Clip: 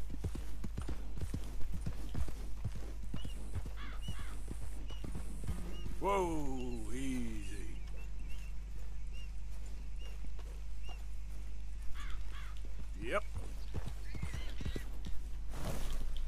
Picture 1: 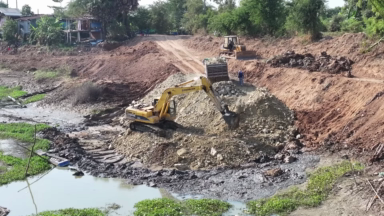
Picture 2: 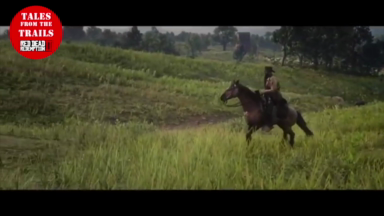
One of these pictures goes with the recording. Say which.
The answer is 2